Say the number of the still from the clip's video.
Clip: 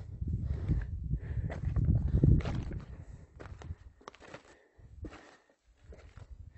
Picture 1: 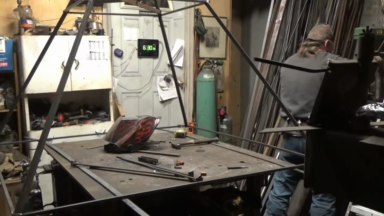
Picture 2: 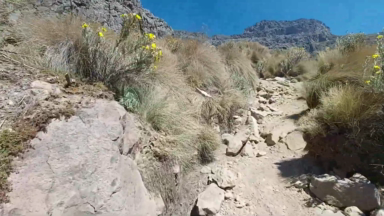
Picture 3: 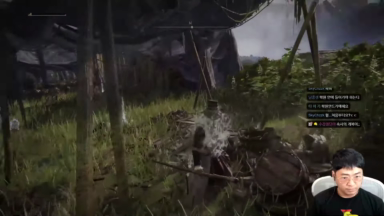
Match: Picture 2